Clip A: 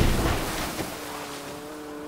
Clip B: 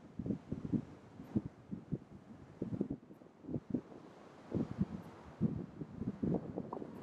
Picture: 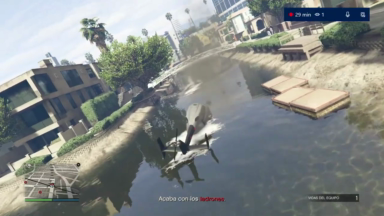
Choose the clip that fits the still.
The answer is A